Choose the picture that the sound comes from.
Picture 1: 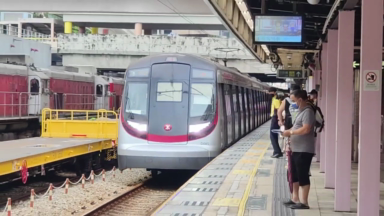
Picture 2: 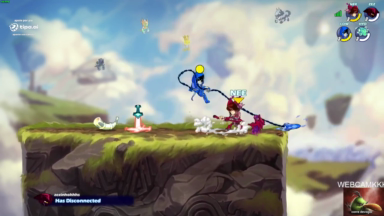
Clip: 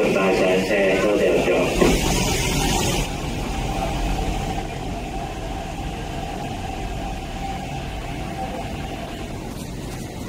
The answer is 1